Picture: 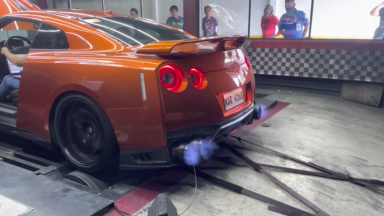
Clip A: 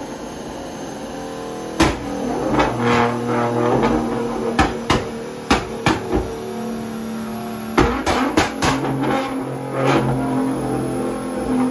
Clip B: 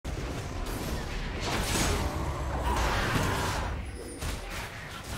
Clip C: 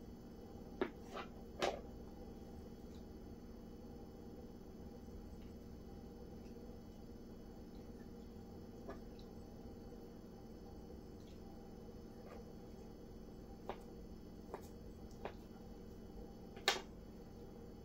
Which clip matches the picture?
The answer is A